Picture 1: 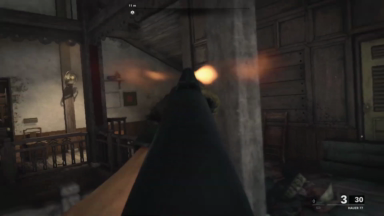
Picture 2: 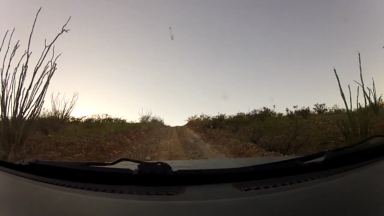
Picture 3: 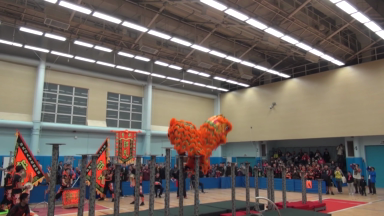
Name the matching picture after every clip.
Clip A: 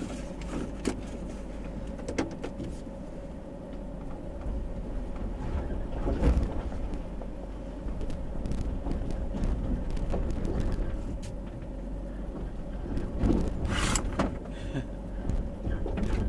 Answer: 2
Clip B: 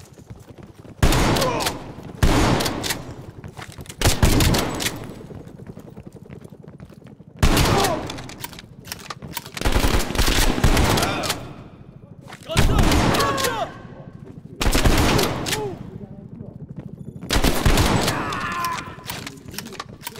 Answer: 1